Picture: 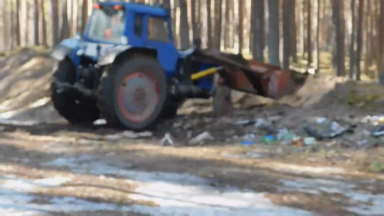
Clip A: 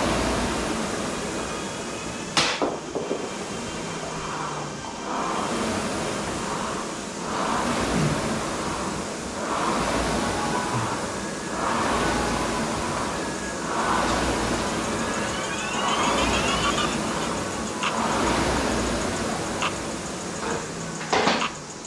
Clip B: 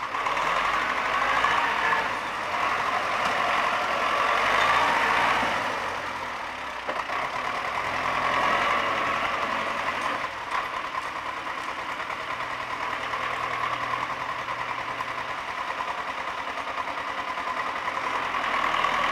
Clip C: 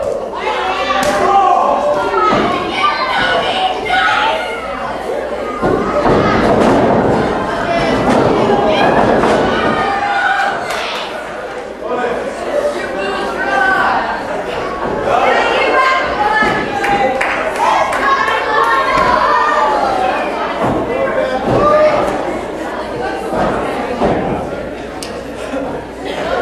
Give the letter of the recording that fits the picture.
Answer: B